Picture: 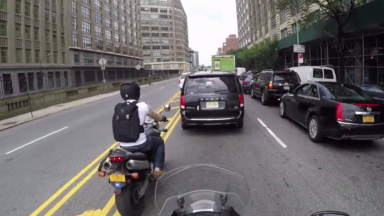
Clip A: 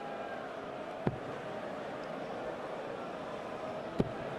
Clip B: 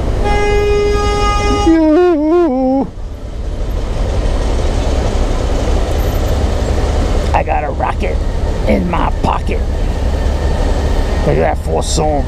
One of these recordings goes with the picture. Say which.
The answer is B